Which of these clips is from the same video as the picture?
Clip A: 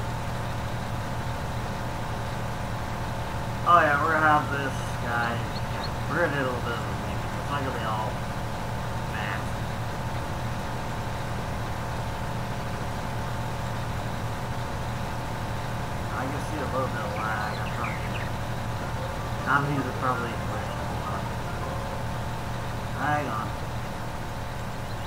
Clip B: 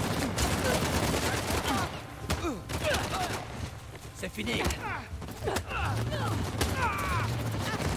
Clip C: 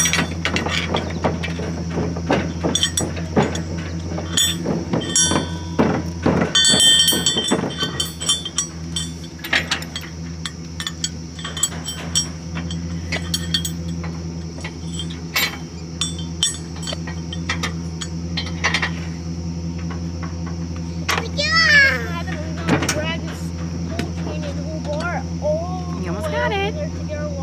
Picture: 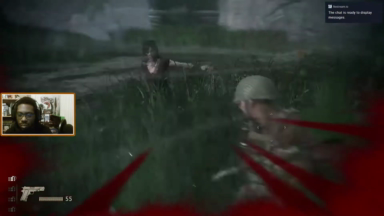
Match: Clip B